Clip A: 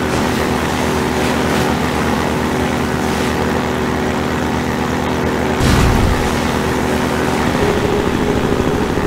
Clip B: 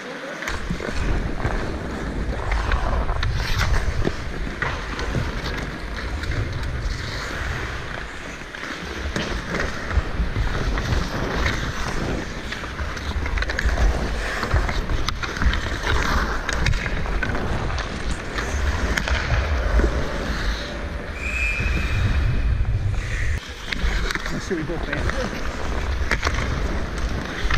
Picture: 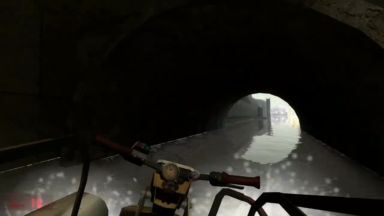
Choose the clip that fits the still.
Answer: A